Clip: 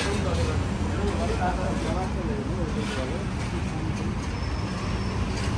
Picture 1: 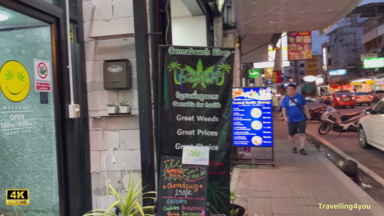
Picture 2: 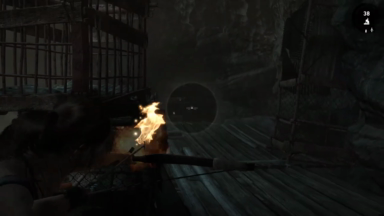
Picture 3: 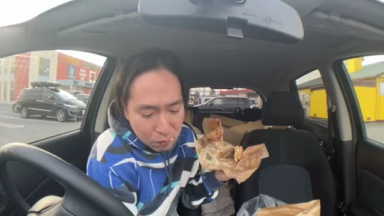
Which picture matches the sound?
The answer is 1